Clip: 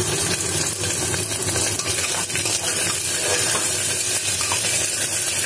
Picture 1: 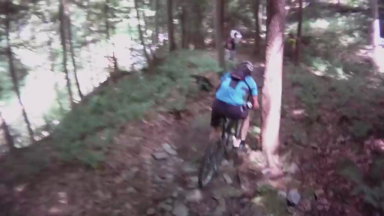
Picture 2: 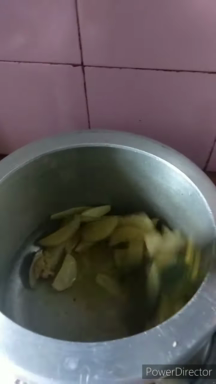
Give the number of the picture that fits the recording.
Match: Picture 2